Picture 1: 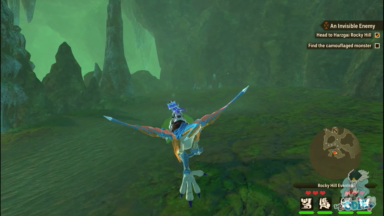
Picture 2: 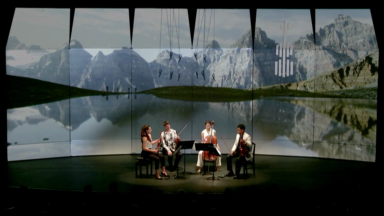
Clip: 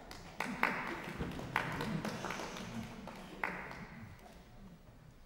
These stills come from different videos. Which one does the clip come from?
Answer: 2